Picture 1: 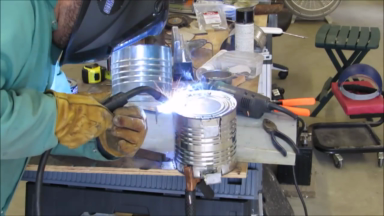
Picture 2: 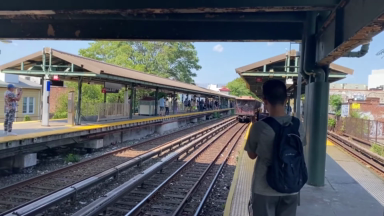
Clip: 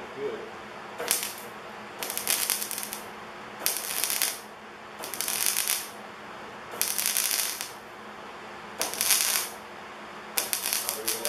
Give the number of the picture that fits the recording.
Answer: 1